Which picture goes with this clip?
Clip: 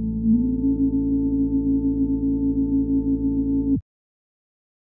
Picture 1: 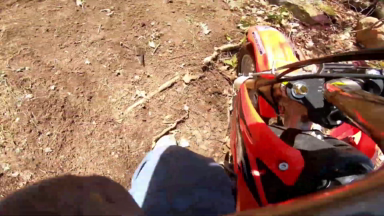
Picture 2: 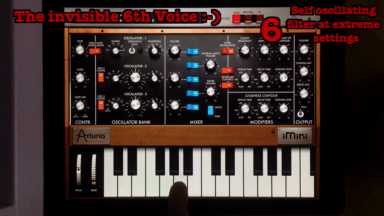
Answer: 2